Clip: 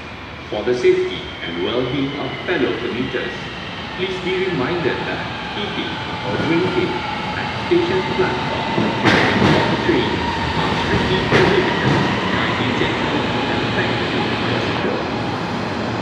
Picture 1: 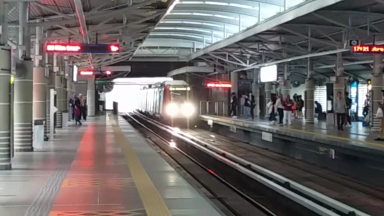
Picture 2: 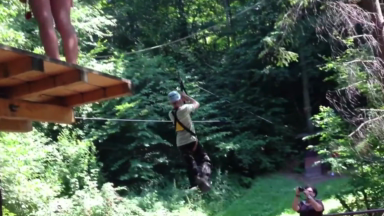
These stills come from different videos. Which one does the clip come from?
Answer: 1